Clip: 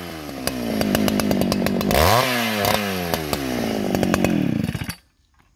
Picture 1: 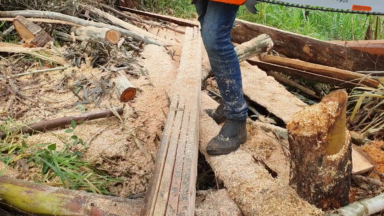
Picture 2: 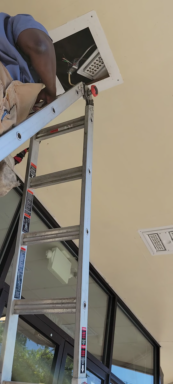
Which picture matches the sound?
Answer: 1